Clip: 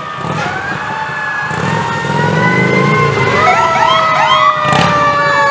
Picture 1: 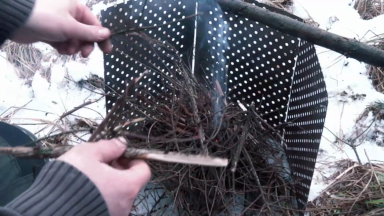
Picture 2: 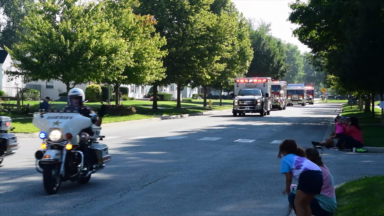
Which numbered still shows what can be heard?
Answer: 2